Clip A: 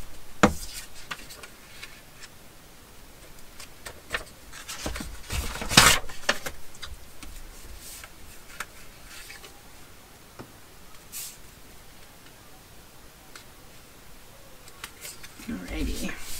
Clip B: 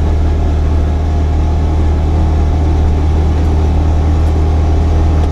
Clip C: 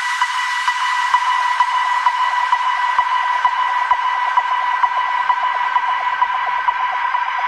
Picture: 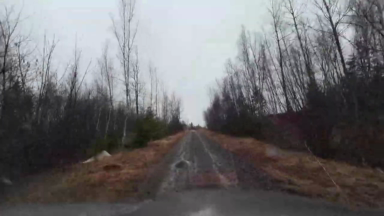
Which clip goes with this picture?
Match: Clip B